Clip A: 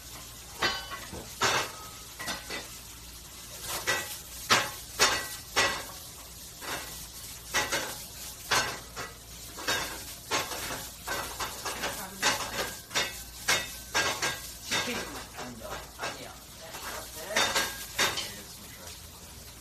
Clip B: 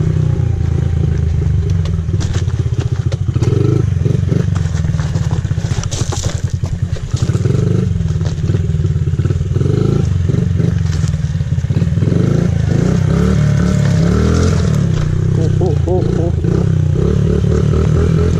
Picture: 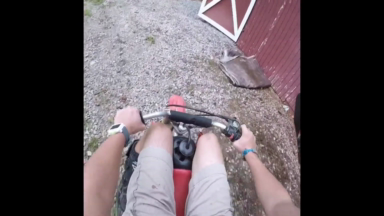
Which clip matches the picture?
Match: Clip B